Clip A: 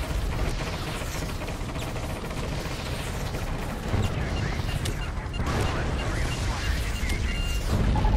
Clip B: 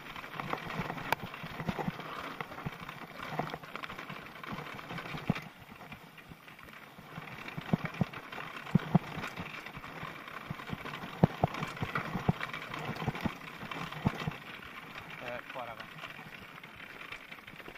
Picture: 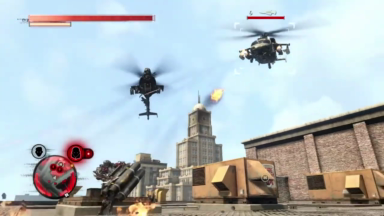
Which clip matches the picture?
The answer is A